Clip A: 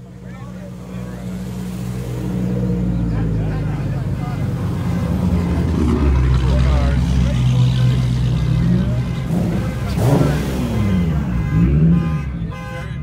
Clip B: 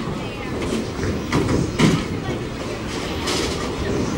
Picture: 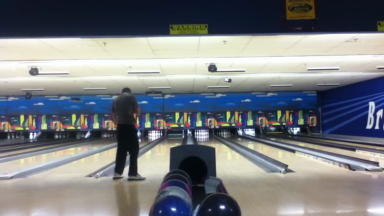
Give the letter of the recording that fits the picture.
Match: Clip B